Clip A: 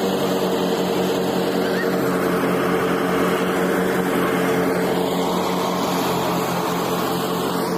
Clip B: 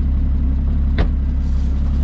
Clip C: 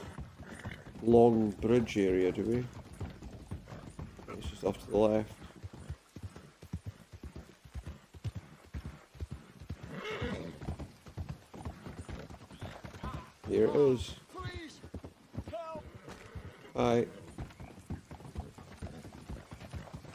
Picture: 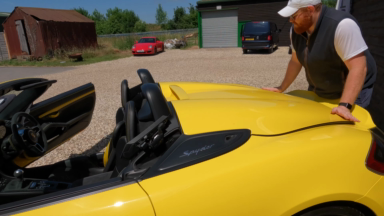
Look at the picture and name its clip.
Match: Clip B